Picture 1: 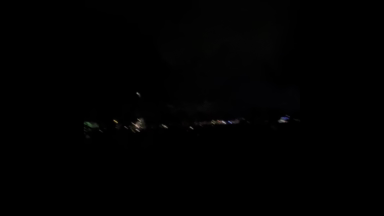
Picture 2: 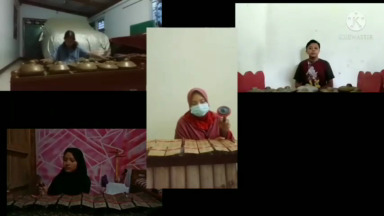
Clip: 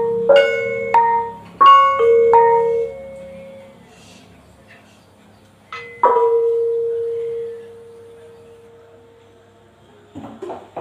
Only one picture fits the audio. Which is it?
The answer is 2